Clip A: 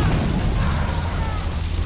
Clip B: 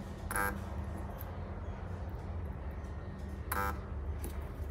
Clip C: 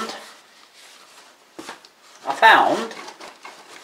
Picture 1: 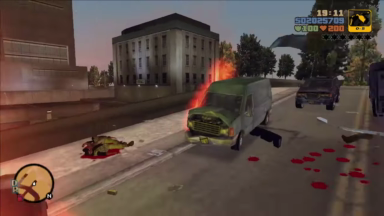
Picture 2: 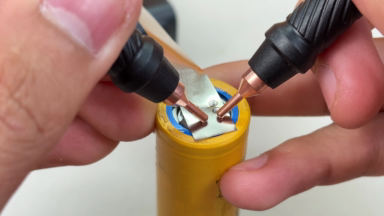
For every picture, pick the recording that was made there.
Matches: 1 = A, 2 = B